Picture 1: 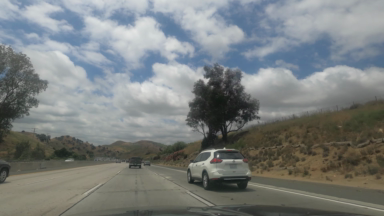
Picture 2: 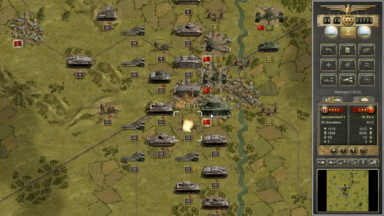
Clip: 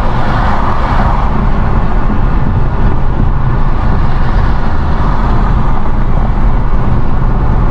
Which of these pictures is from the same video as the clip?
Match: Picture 1